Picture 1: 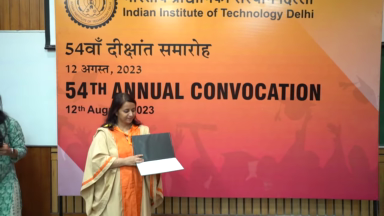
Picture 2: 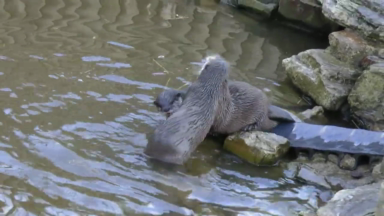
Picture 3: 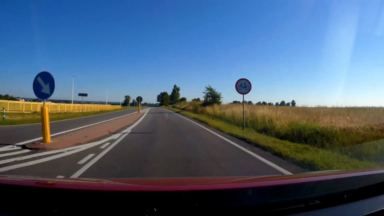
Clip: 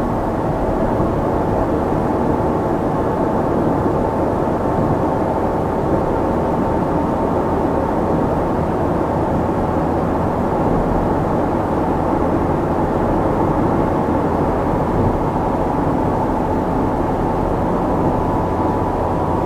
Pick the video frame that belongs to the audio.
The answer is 3